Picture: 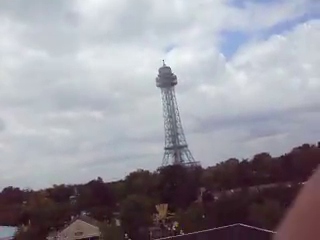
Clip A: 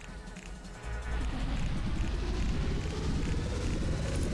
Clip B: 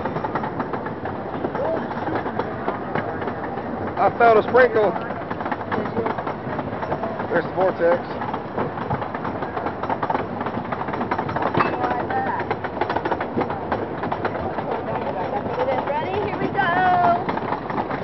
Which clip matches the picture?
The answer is B